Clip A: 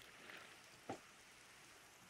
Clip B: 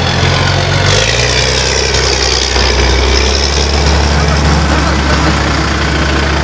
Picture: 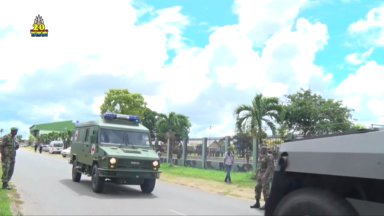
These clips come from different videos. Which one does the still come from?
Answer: B